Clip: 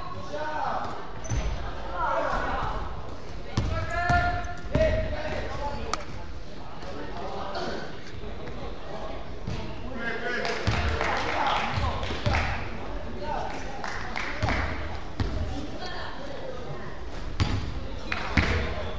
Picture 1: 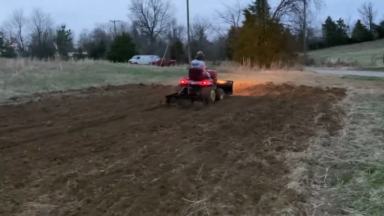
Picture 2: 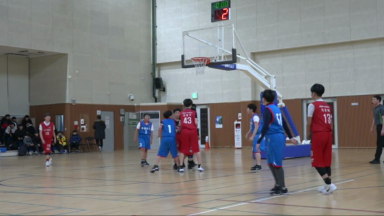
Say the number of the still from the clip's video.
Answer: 2